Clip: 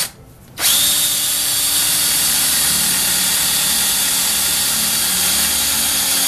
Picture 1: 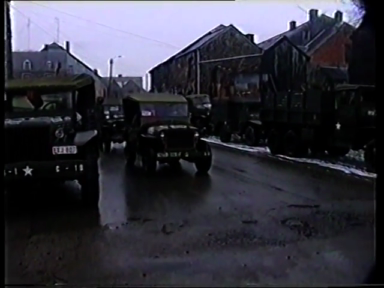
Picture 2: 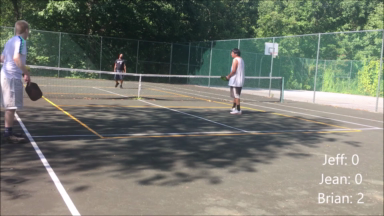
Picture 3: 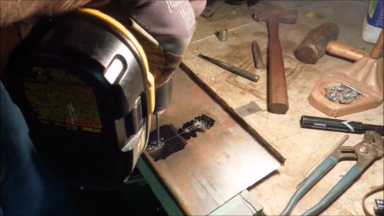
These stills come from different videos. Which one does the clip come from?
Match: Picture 3